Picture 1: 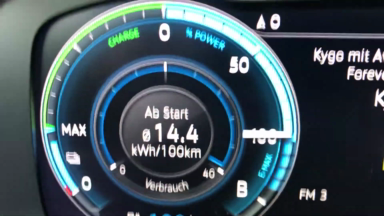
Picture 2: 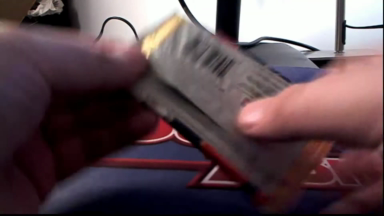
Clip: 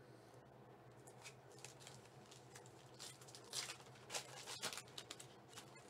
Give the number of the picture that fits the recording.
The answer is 2